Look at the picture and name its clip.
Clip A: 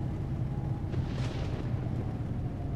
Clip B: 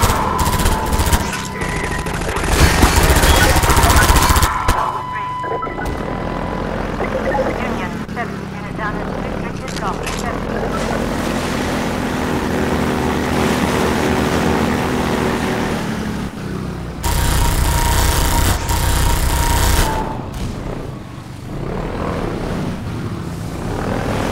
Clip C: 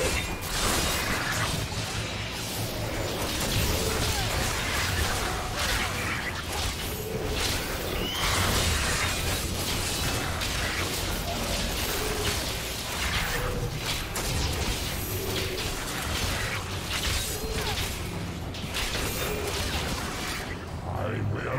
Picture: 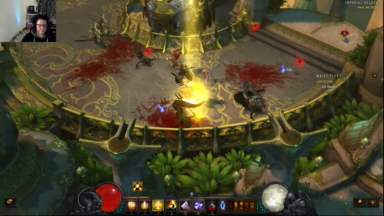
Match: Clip C